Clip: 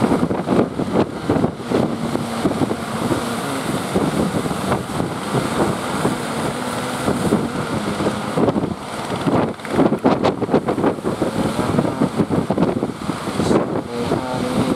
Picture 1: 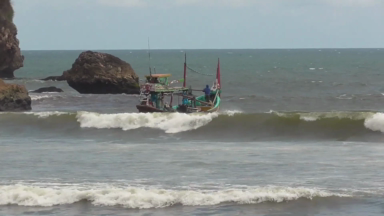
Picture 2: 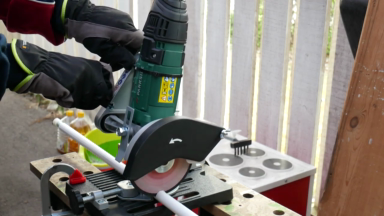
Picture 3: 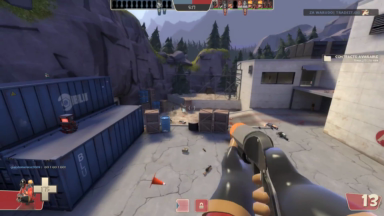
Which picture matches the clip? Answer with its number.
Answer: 1